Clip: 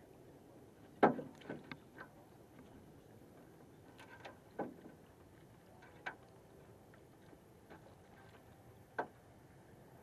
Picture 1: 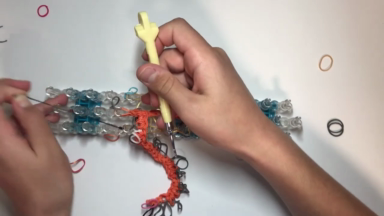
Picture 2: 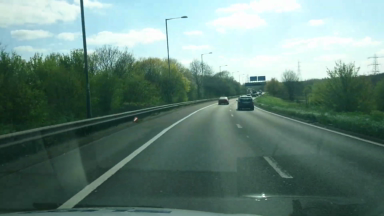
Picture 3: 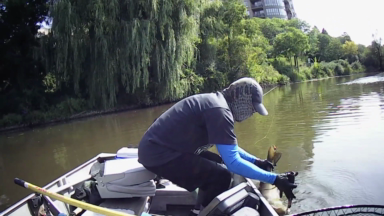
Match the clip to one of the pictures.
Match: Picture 3